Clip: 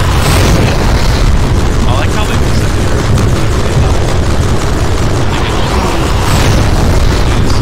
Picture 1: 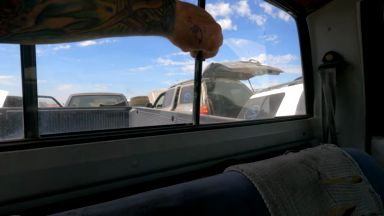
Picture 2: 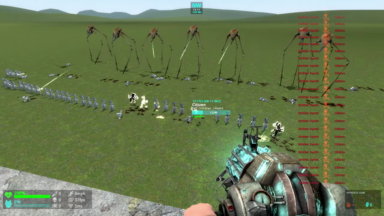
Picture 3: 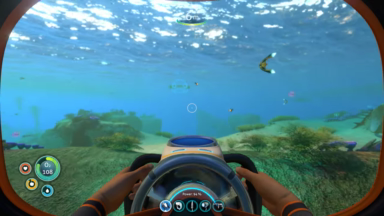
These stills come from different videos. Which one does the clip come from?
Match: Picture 2